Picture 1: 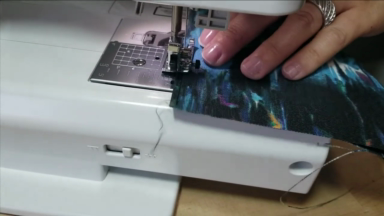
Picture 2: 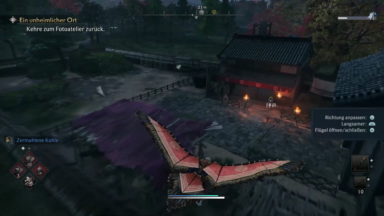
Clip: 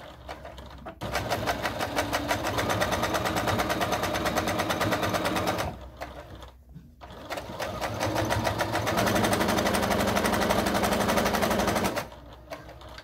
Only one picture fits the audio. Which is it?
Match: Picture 1